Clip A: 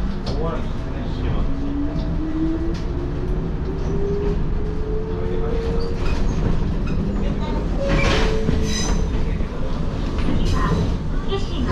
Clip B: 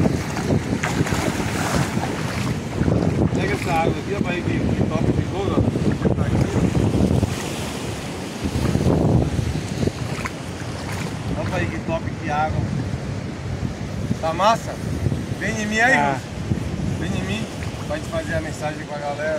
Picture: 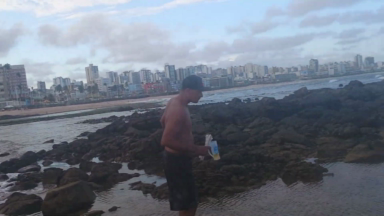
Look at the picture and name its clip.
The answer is B